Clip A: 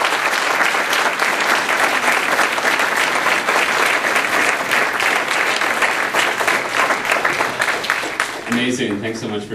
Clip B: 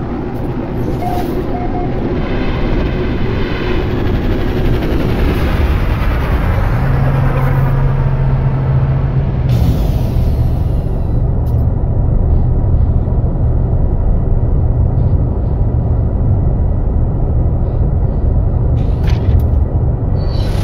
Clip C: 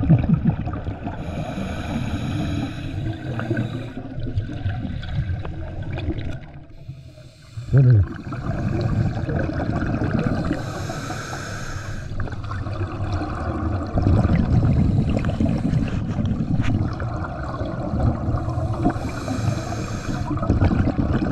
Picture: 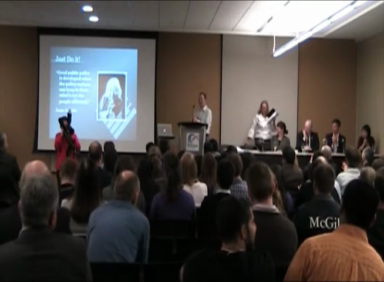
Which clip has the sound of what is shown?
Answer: A